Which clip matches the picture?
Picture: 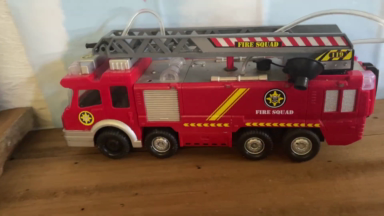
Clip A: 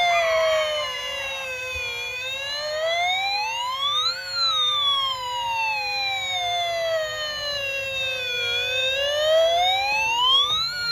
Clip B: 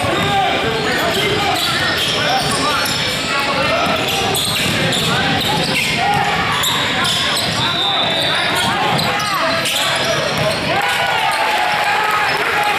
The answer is A